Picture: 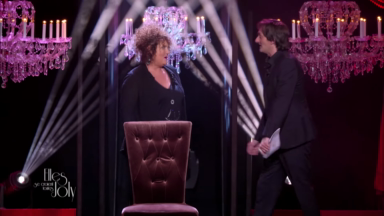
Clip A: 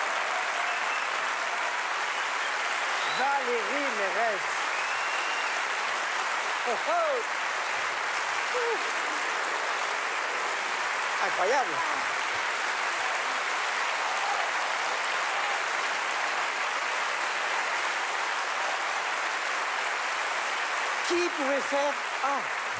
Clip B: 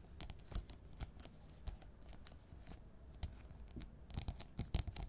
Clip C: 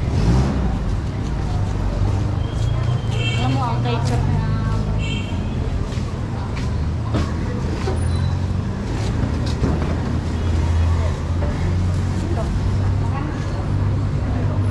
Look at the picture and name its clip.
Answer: A